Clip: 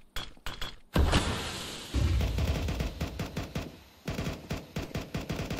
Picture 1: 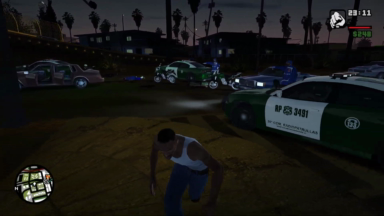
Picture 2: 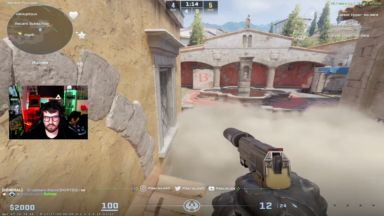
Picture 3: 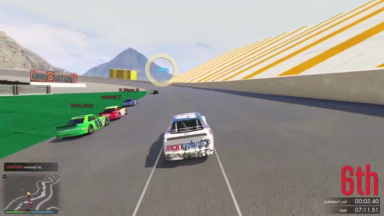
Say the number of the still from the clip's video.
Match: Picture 2